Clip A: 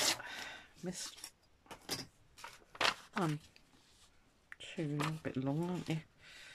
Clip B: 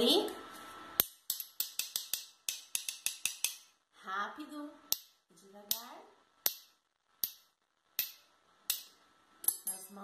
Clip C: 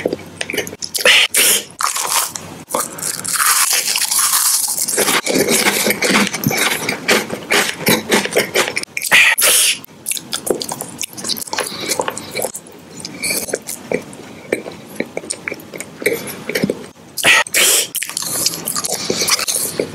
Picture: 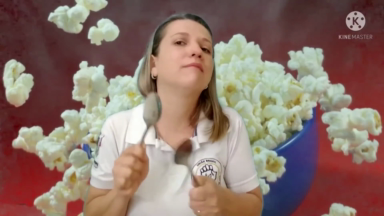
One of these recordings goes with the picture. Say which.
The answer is B